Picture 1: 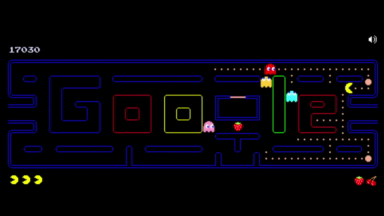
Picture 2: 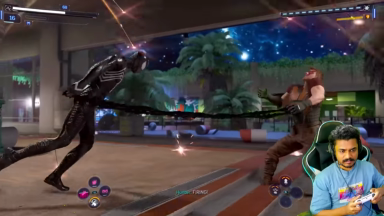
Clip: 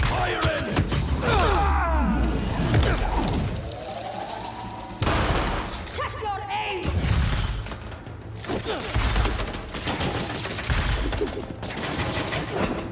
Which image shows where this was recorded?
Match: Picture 2